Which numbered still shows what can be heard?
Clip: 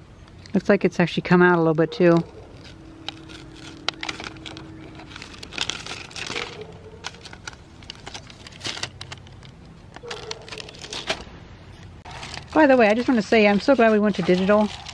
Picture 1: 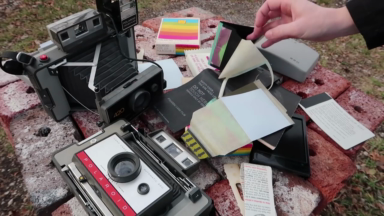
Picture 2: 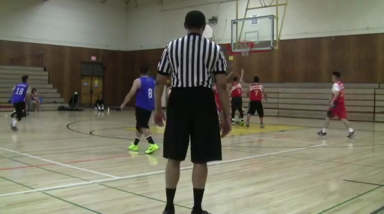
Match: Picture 1